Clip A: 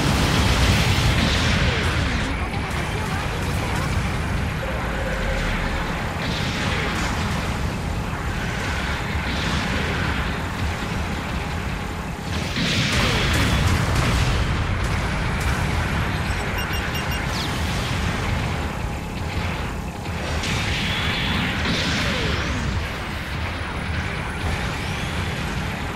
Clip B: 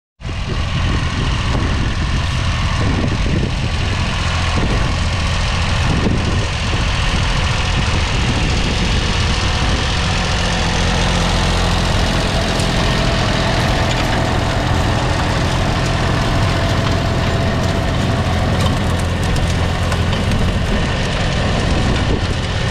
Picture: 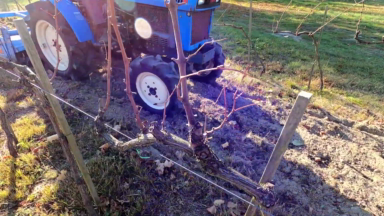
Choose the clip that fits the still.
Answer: B